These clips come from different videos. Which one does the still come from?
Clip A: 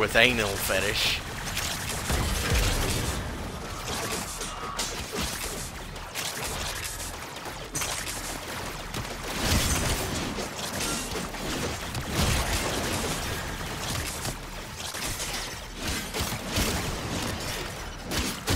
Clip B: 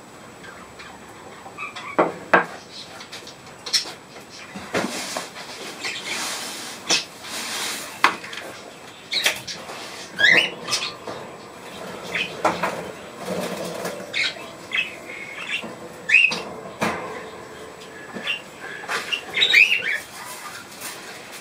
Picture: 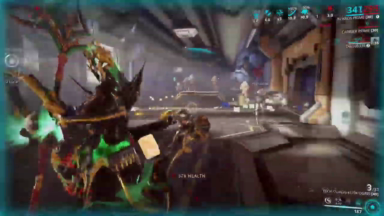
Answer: A